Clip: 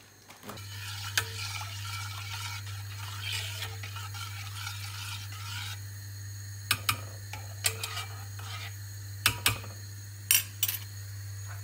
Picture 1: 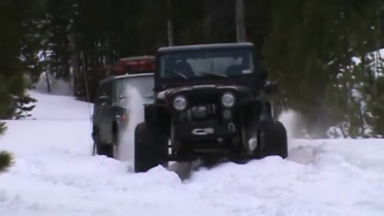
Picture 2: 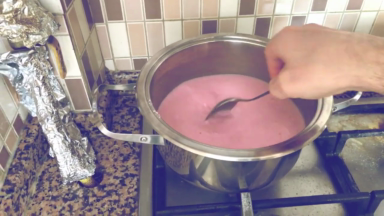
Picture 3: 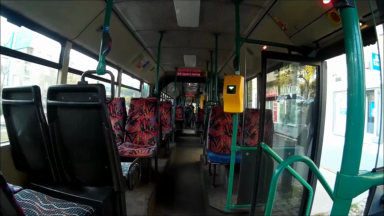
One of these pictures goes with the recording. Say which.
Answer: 2